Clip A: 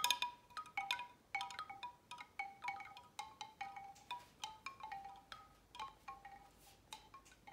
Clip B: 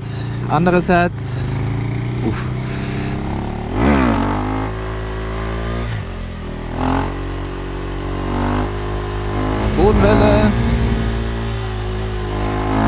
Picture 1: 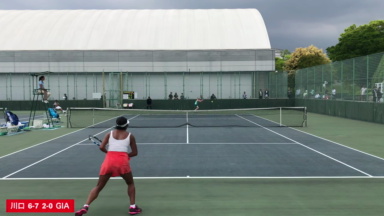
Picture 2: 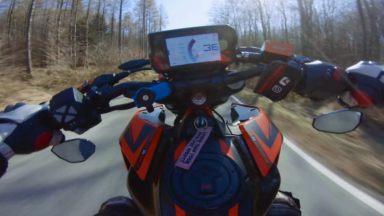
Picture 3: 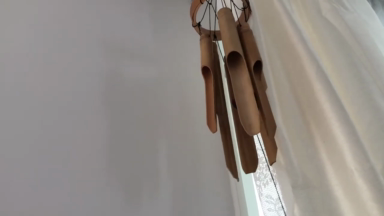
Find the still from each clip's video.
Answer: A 3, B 2